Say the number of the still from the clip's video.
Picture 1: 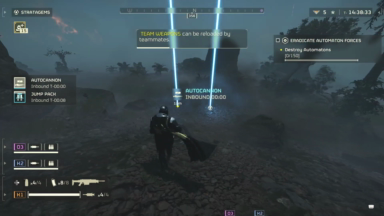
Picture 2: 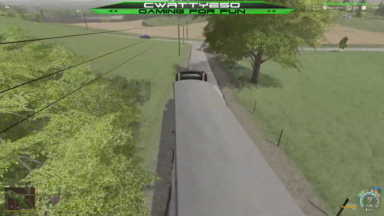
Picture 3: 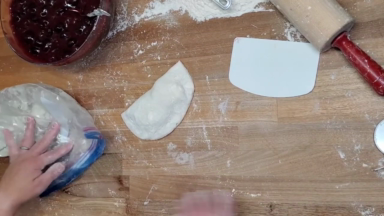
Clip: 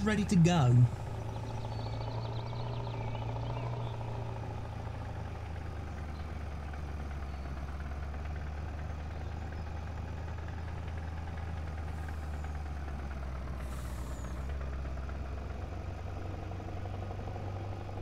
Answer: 2